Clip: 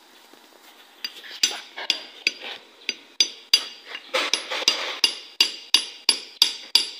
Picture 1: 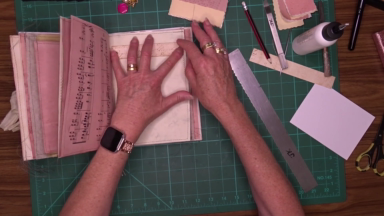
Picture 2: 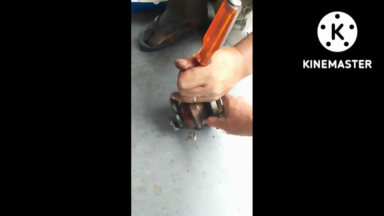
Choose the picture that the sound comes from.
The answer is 2